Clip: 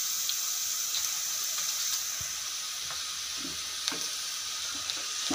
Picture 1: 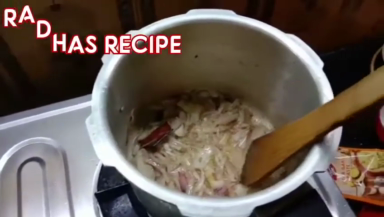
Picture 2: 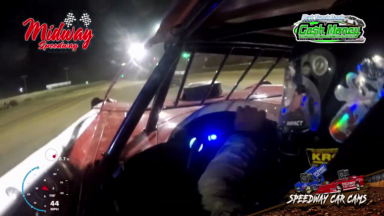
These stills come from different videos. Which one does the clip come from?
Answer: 1